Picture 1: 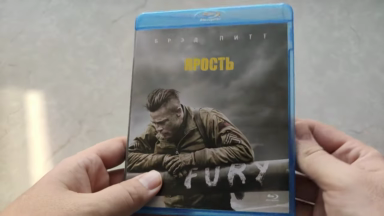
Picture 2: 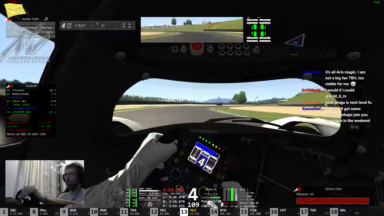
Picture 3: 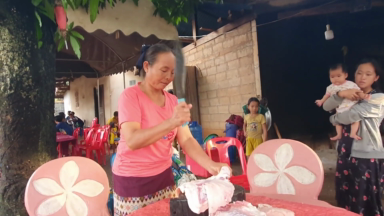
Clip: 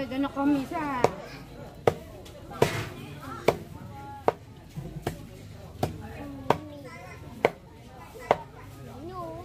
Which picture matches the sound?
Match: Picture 3